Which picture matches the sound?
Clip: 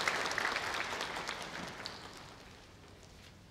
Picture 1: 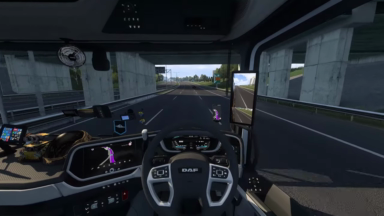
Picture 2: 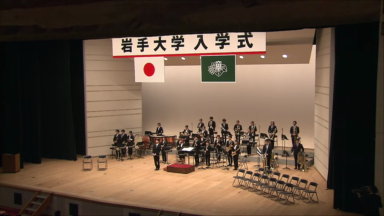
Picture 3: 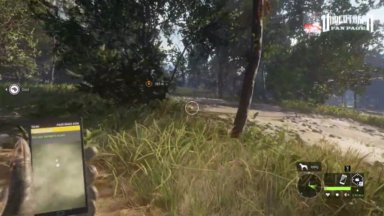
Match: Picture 2